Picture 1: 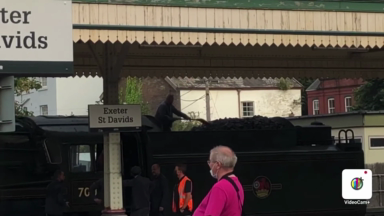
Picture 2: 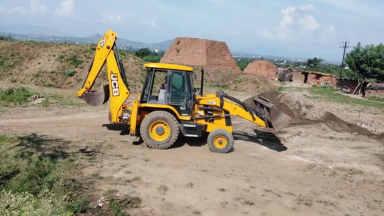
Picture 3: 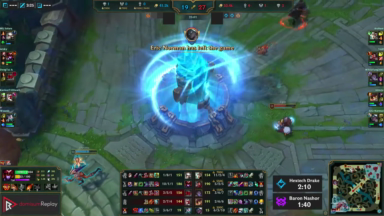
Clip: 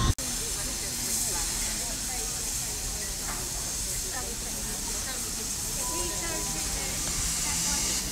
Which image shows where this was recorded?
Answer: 1